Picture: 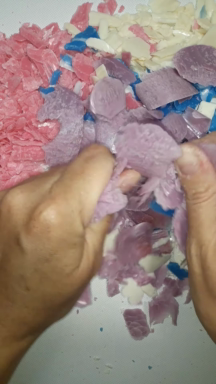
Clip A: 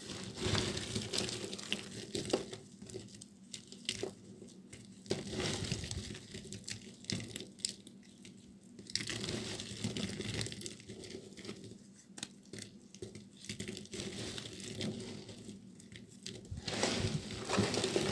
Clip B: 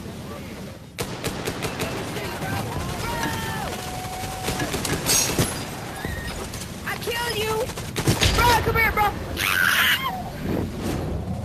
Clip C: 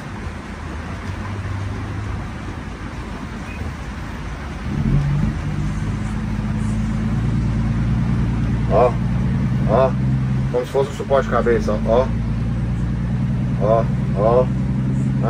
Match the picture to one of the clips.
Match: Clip A